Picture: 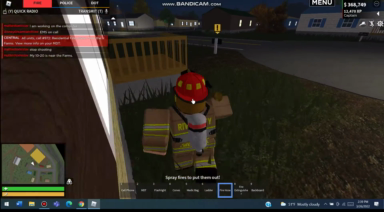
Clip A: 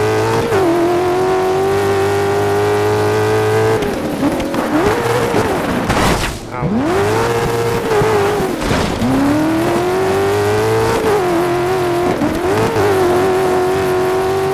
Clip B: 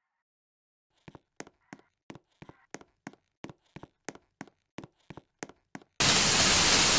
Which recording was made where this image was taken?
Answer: B